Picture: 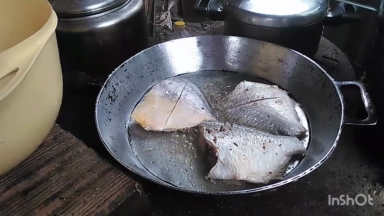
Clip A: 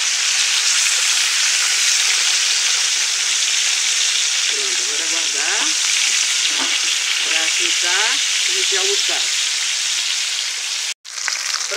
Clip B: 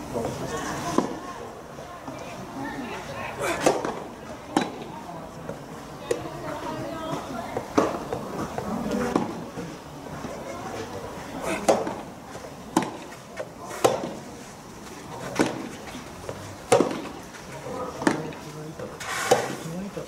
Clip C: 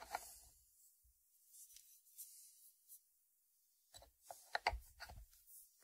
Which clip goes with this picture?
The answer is A